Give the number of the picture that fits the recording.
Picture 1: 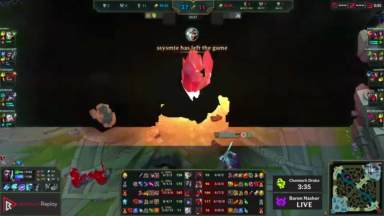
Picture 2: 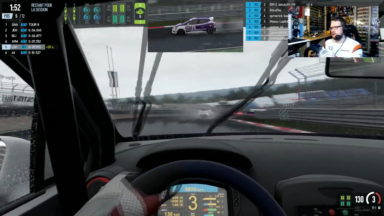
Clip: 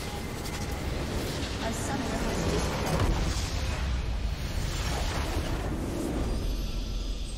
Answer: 1